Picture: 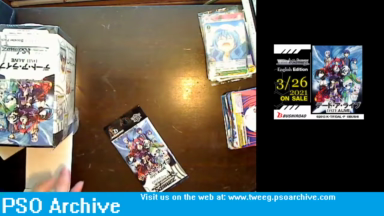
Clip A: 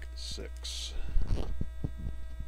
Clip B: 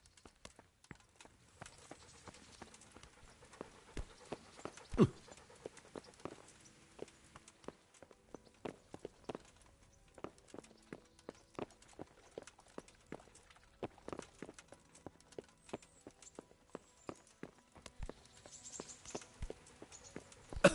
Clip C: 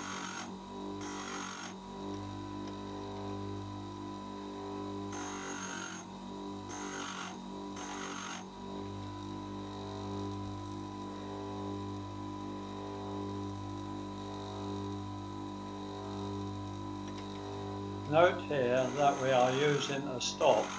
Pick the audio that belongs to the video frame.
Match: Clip A